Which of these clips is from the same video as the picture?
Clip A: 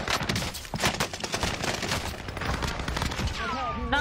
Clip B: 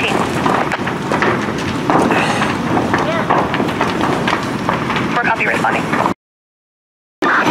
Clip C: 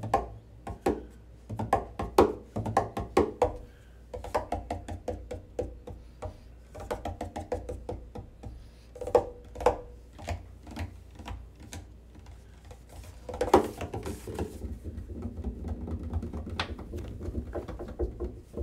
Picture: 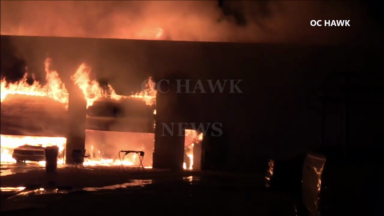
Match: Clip B